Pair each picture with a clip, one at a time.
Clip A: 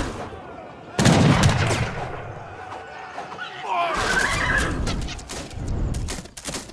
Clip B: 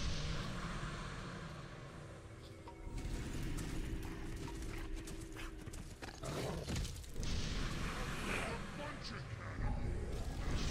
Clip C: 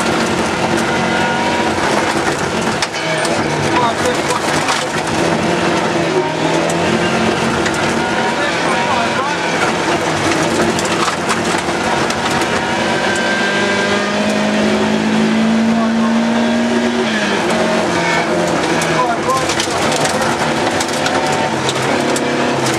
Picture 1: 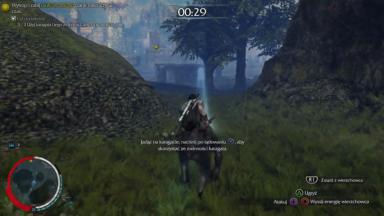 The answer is B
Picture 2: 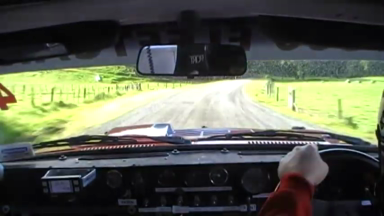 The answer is C